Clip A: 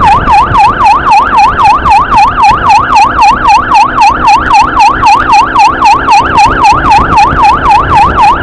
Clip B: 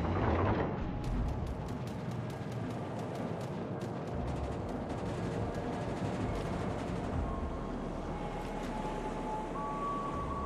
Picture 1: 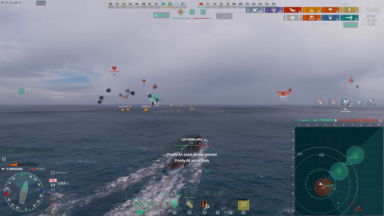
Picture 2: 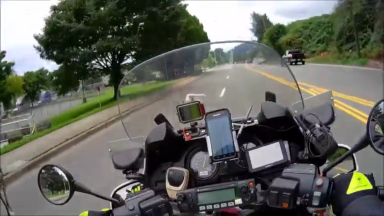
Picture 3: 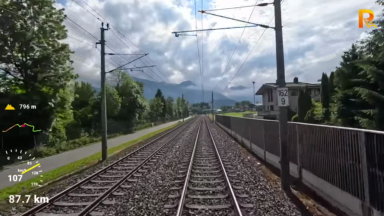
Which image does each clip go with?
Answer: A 2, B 1